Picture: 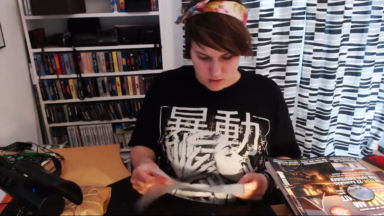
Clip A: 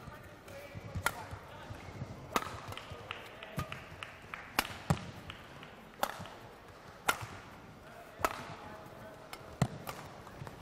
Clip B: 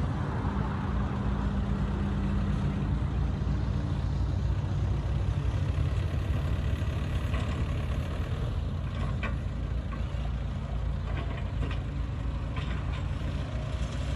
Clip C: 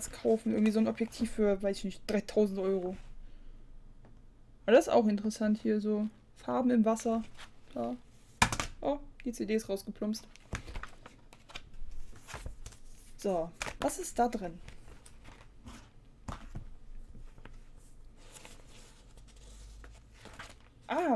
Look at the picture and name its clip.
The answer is C